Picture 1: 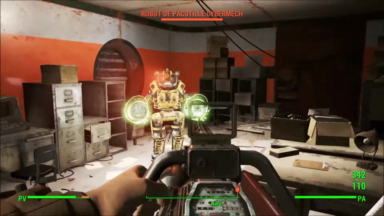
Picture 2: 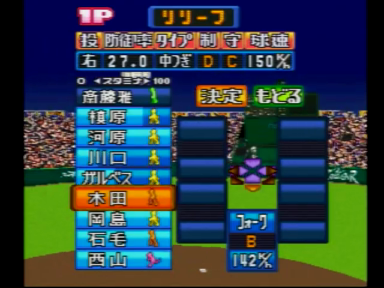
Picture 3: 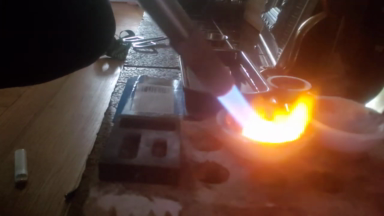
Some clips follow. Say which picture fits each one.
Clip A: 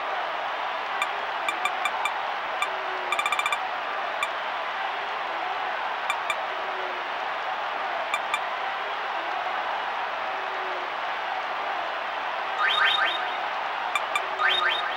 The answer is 2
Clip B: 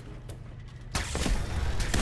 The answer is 1